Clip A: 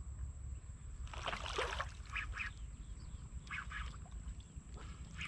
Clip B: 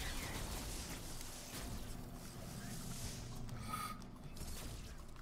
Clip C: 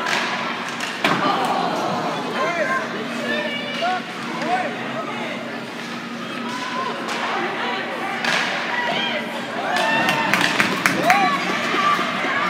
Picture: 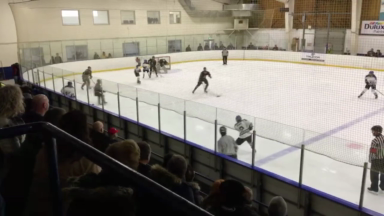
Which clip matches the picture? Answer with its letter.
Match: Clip C